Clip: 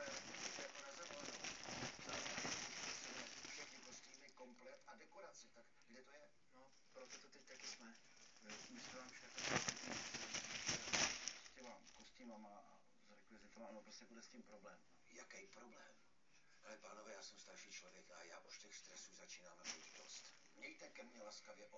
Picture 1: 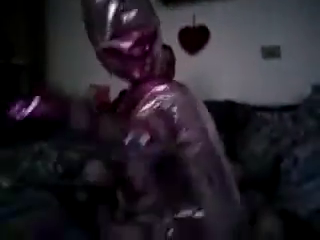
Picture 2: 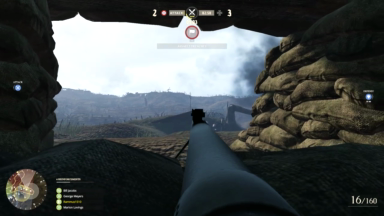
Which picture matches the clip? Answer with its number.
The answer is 1